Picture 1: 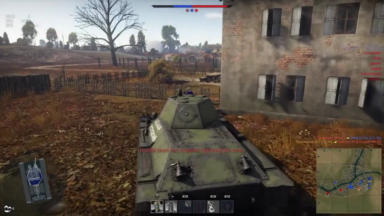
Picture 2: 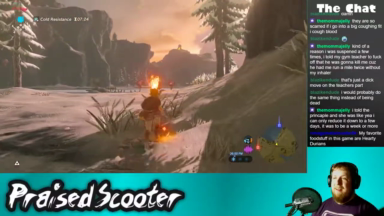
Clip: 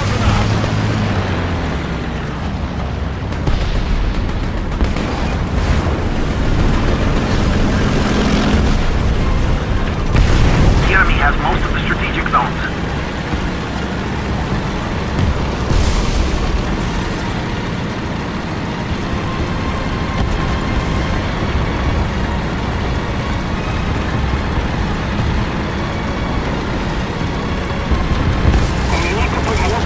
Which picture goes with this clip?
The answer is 1